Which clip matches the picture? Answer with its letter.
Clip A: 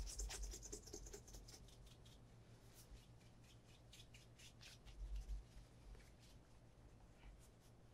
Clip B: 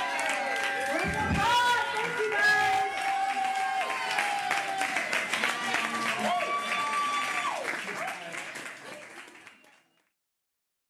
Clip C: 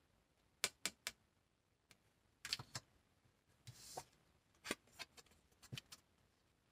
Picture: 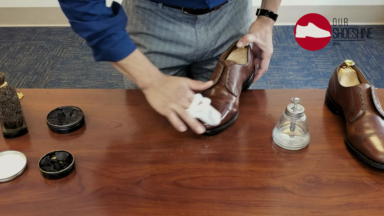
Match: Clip A